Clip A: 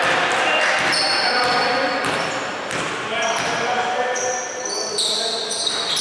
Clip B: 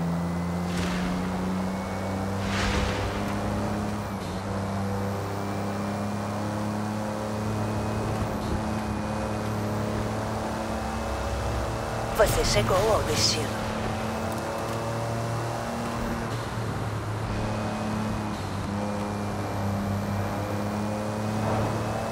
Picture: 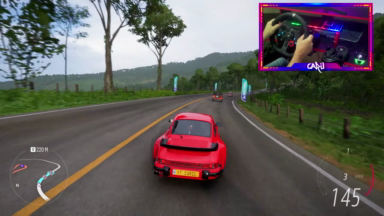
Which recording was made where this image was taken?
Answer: B